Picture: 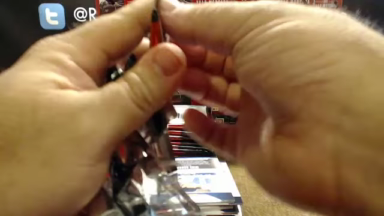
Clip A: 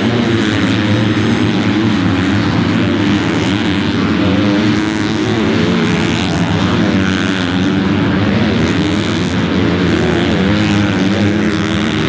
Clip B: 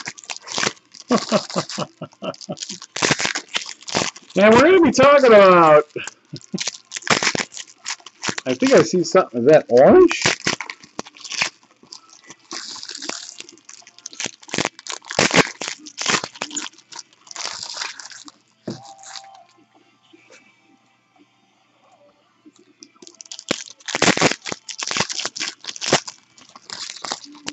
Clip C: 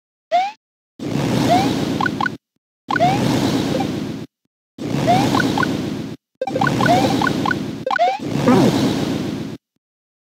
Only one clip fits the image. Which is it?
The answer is B